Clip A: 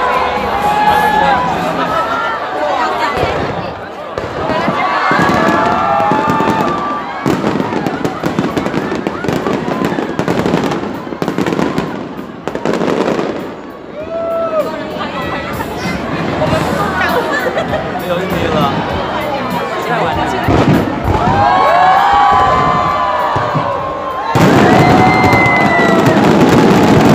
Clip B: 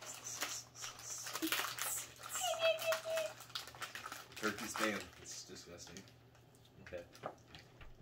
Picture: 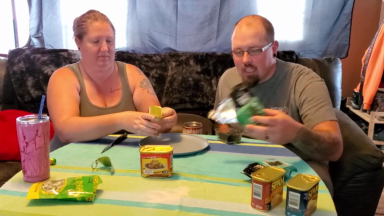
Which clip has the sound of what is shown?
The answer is B